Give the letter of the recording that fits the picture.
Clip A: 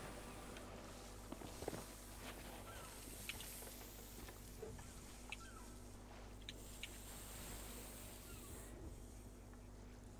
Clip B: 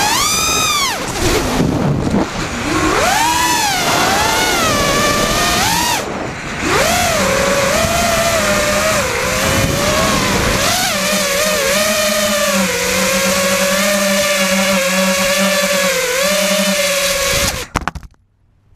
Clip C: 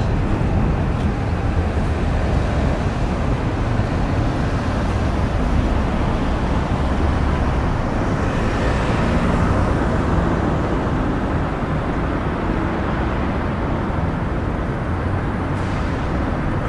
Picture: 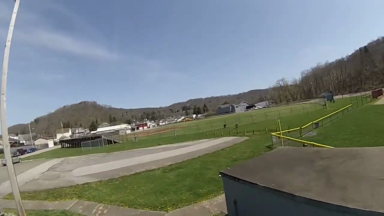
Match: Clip B